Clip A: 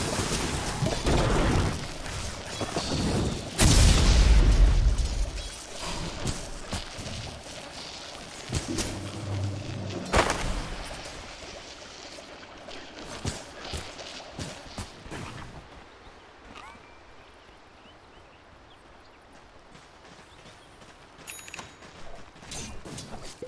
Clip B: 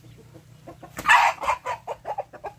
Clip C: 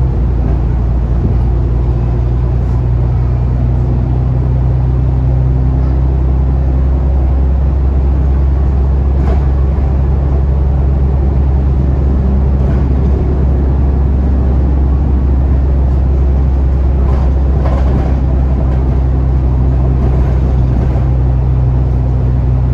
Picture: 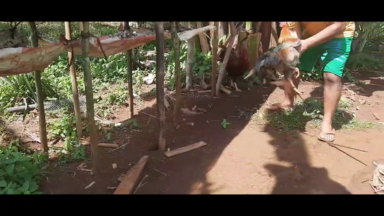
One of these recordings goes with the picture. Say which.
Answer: B